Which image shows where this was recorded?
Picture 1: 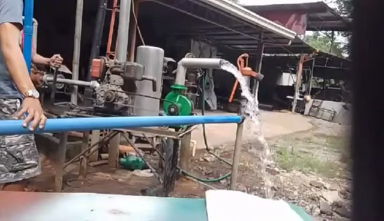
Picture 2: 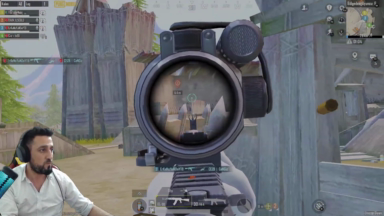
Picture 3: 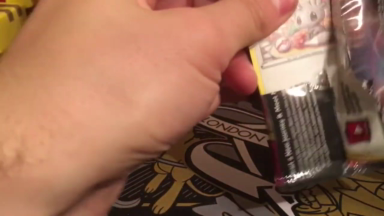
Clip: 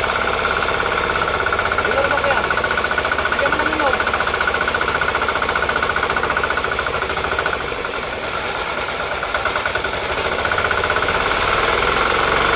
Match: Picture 1